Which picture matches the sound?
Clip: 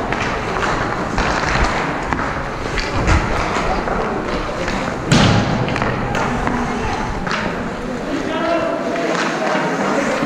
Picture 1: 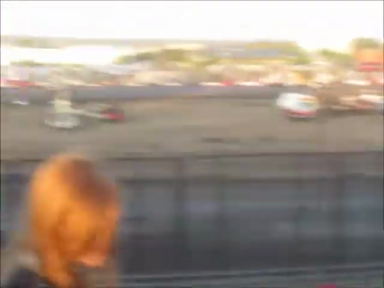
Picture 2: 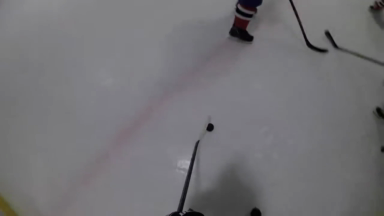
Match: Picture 2